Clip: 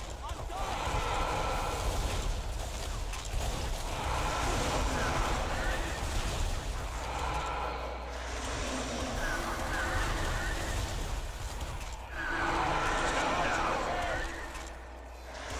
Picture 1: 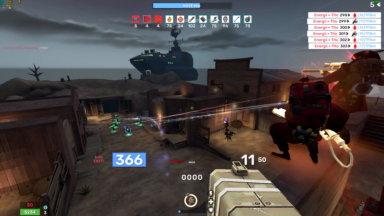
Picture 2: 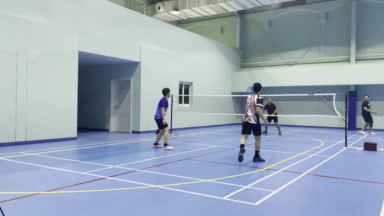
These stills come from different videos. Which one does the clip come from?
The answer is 1